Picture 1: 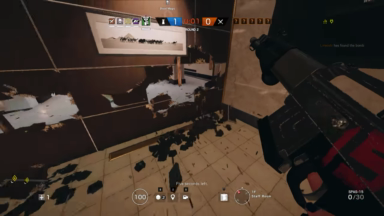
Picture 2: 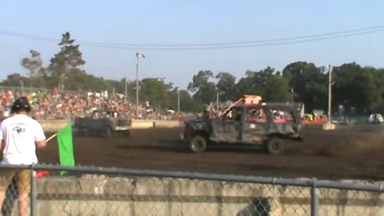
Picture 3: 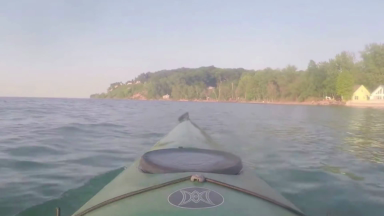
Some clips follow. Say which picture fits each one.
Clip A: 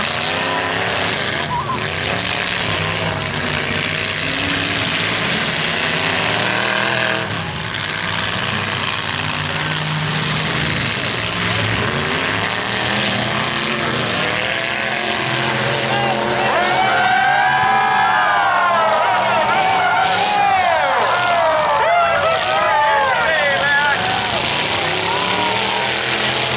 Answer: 2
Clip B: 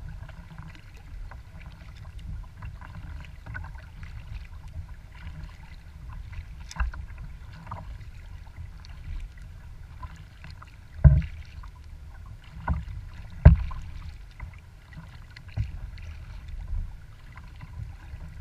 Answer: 3